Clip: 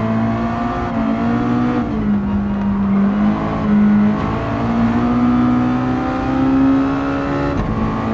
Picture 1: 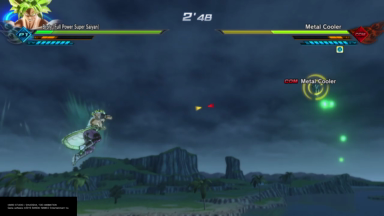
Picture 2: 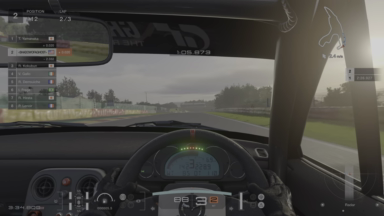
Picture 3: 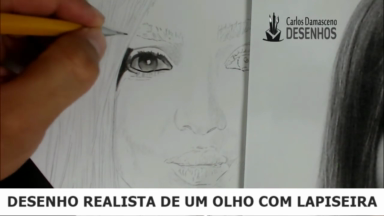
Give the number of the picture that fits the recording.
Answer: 2